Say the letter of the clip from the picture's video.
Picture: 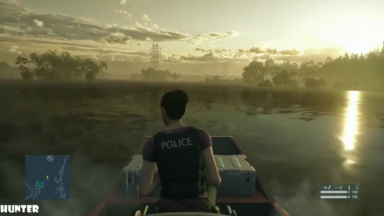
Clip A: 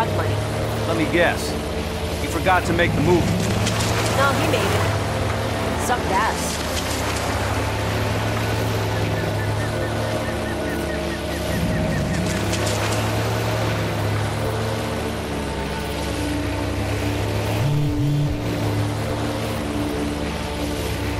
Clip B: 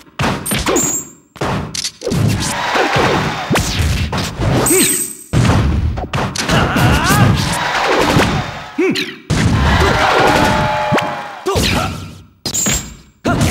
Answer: A